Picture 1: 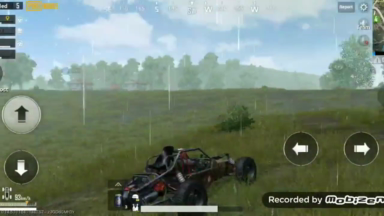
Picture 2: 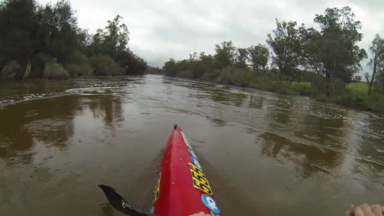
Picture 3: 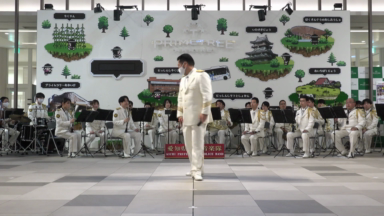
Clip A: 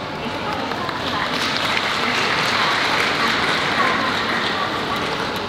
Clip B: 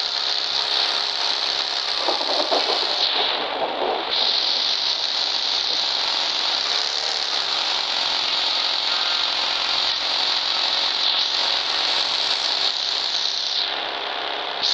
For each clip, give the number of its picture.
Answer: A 3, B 1